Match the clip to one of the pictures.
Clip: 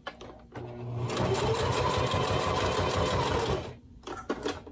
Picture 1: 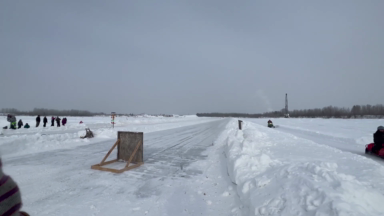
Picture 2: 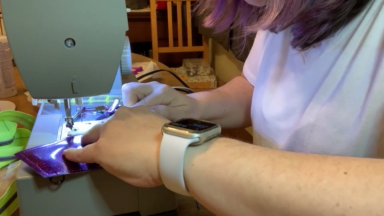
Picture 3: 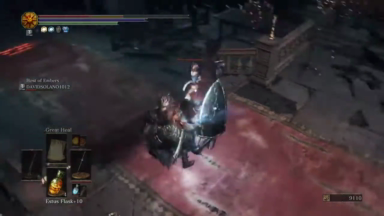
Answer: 2